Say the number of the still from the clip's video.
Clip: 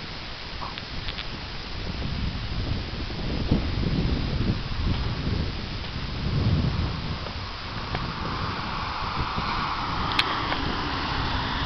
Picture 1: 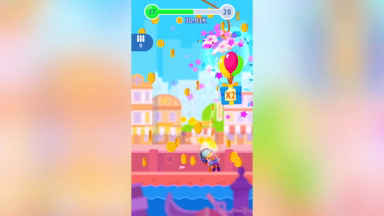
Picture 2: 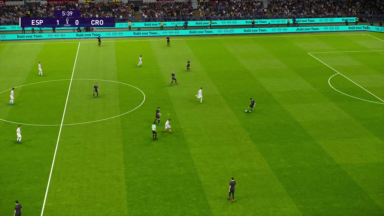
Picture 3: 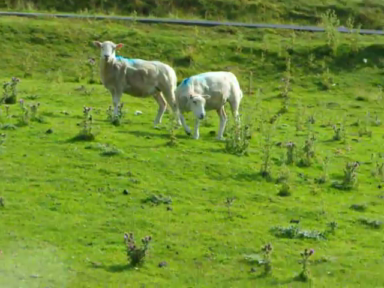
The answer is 3